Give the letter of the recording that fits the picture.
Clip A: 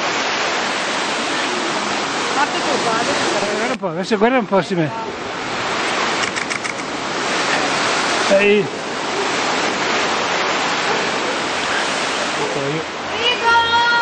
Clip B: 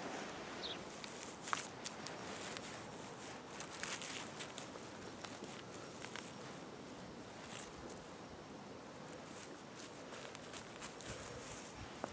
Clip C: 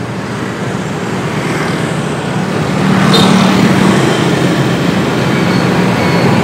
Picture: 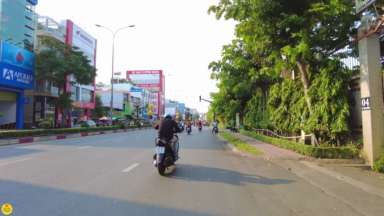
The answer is C